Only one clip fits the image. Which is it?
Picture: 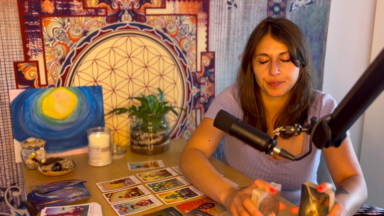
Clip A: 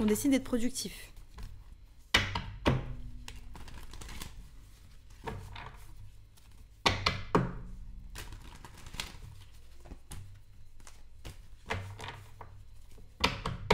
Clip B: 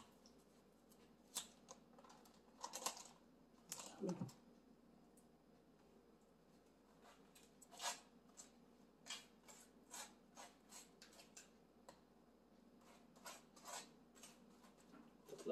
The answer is A